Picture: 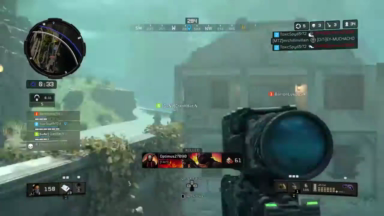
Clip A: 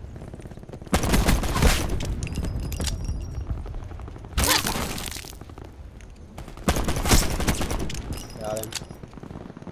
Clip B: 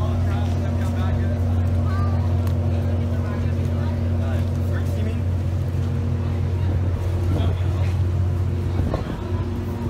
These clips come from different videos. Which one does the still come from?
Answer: A